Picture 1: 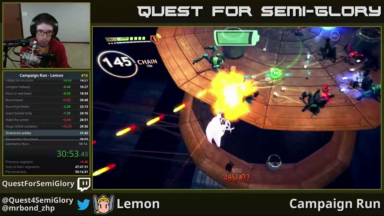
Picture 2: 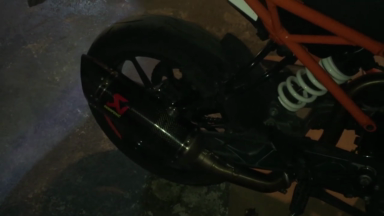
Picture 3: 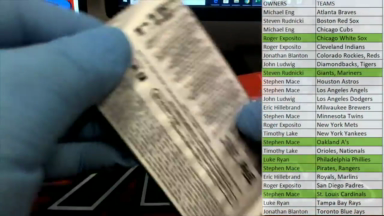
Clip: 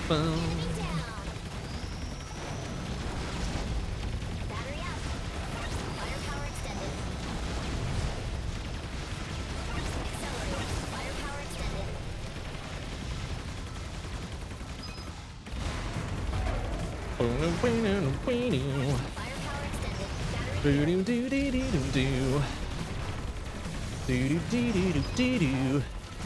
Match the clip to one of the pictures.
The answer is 1